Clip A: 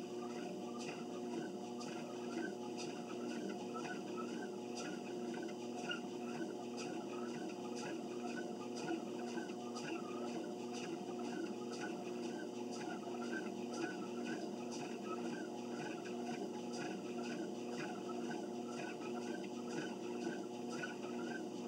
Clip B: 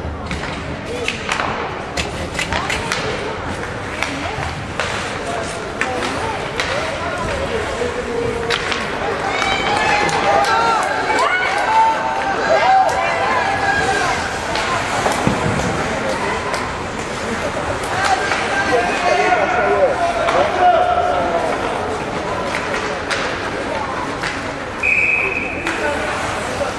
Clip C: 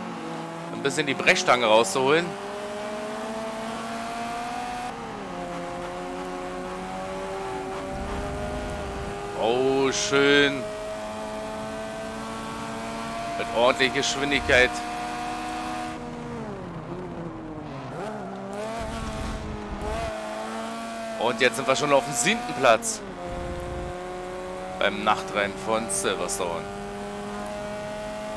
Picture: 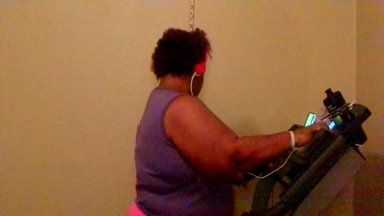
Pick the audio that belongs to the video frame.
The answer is A